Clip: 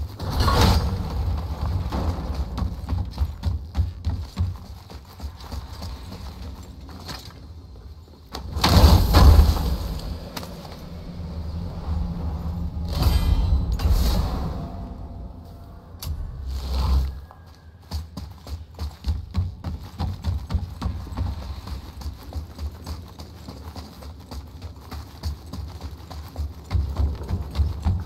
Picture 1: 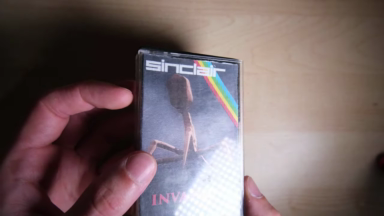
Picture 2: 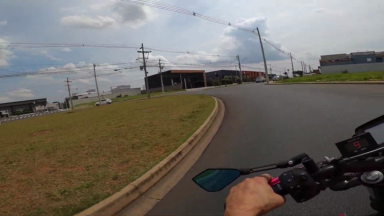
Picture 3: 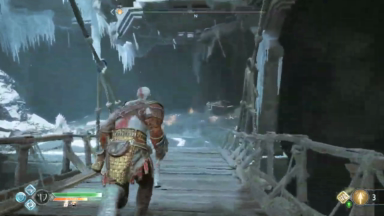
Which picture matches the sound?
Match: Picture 3